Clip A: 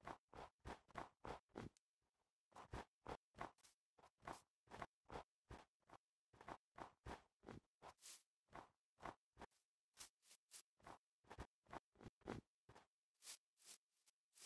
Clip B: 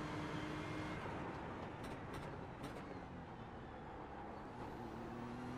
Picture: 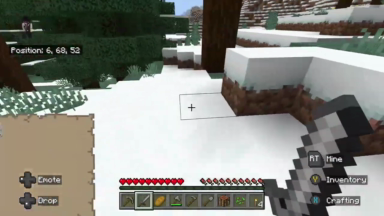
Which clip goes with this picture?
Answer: A